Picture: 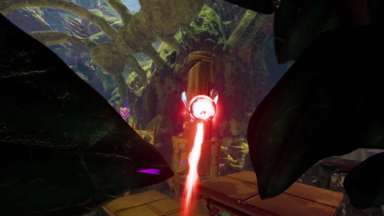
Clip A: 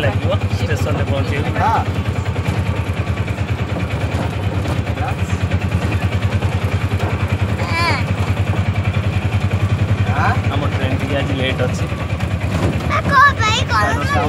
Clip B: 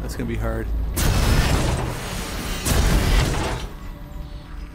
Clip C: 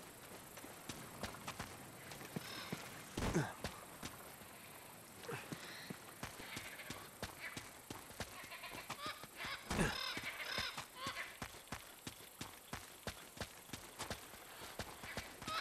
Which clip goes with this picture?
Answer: B